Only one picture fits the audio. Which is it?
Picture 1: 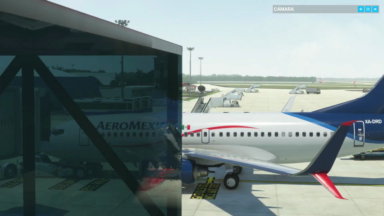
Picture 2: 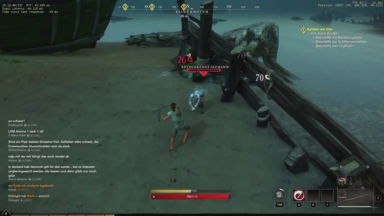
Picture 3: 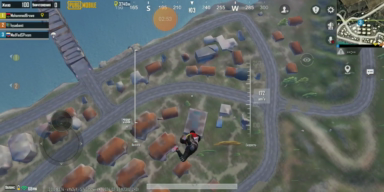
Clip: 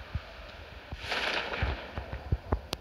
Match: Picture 3